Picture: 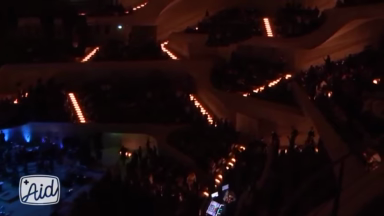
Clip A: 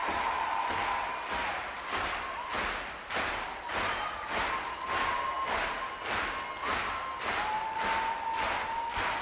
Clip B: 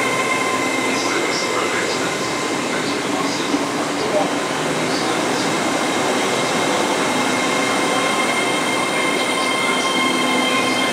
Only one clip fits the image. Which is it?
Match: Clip A